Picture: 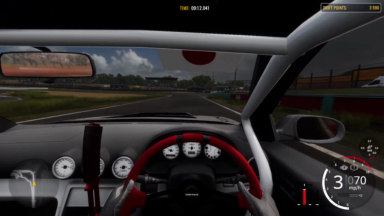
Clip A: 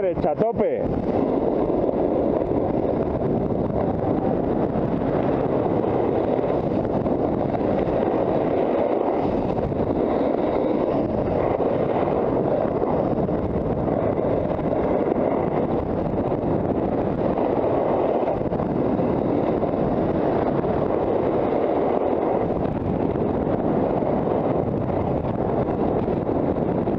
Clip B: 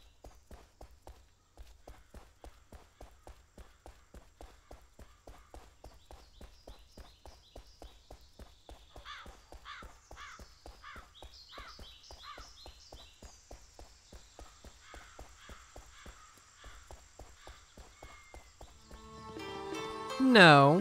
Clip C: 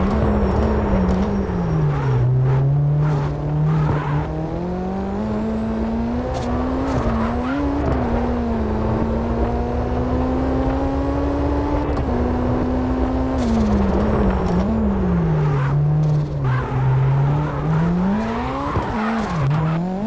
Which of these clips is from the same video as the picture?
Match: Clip C